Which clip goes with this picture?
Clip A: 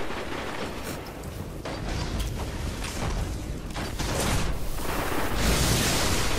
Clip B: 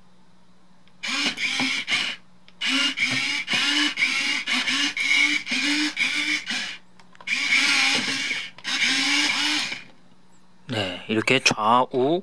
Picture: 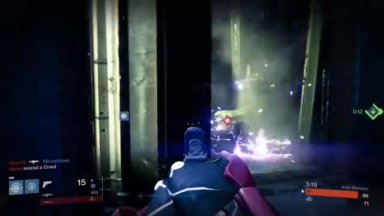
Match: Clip A